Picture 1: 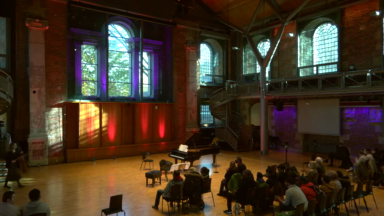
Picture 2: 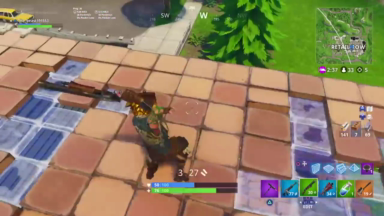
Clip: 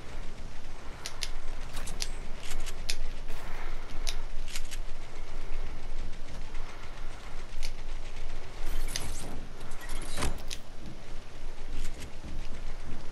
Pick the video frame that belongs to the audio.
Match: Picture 2